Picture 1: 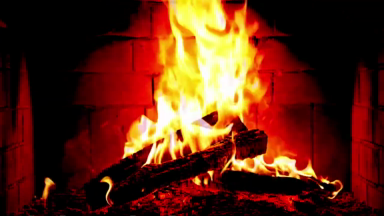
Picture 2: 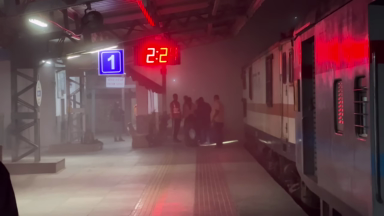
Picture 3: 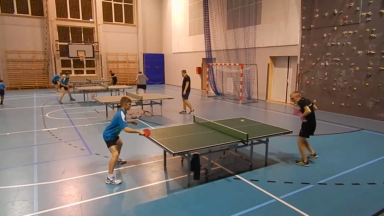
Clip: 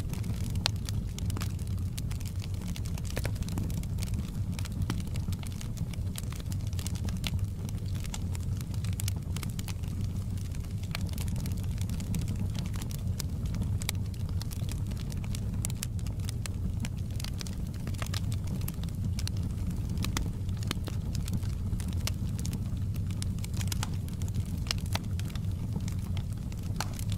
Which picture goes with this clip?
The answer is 1